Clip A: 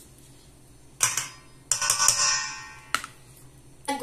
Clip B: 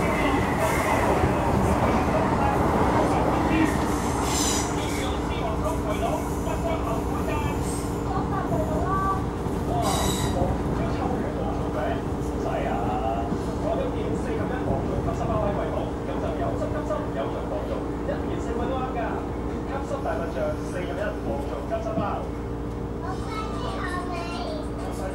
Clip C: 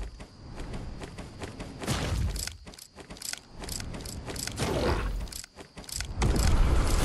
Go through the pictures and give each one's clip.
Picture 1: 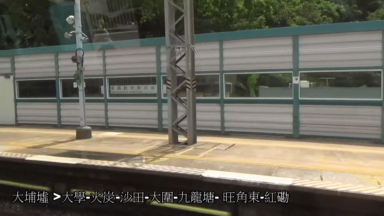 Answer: B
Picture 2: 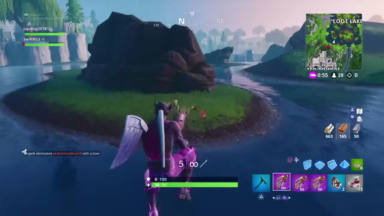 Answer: C